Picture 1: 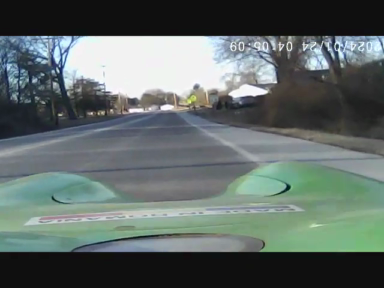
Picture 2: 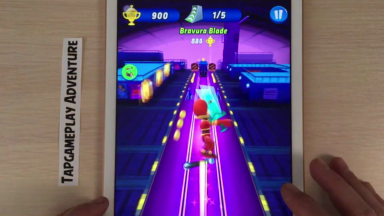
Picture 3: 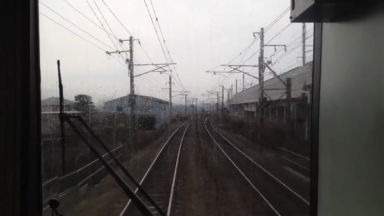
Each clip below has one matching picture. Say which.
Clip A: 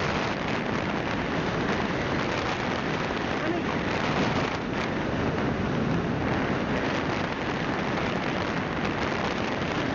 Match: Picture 1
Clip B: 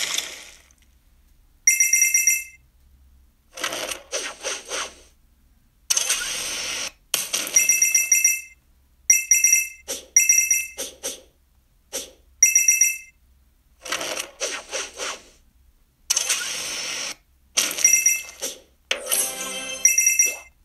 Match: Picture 2